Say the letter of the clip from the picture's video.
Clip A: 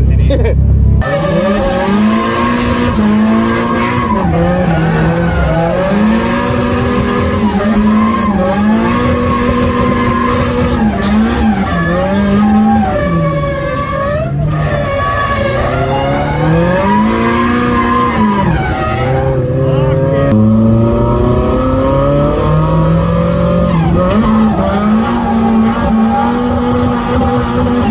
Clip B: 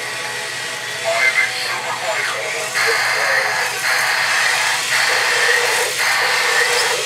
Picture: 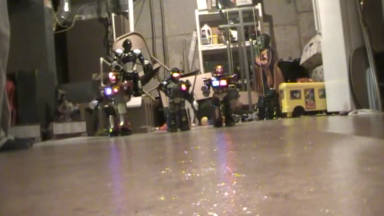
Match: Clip B